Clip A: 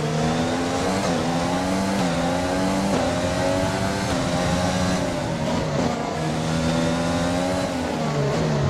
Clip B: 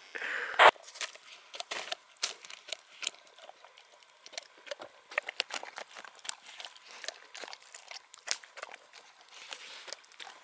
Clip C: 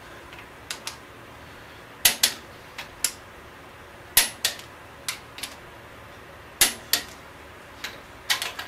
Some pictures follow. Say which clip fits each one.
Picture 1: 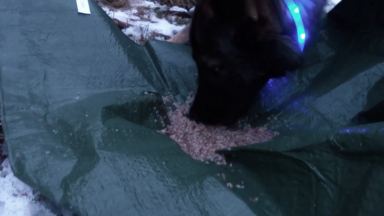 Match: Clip B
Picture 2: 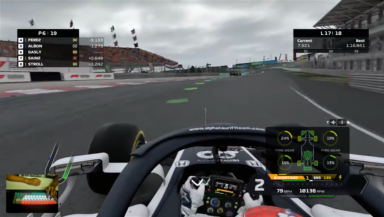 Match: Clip A